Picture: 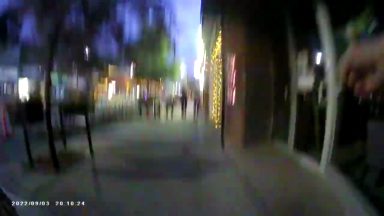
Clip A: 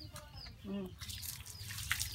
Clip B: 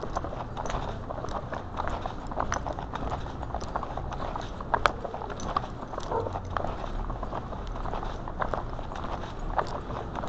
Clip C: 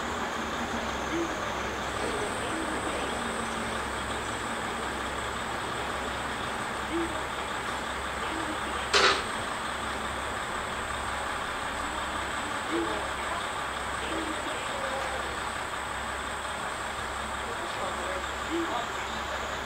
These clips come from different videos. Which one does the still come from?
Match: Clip B